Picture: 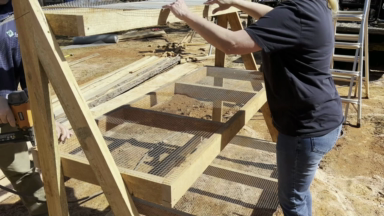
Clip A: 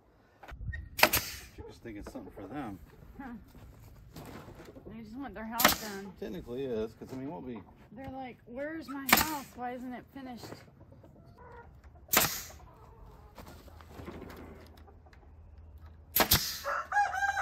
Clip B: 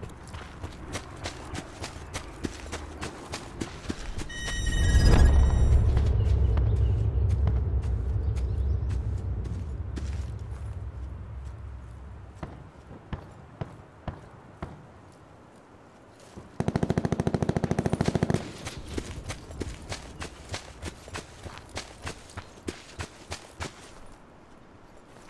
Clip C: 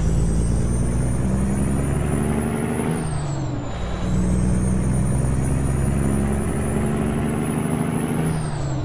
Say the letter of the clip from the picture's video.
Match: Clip A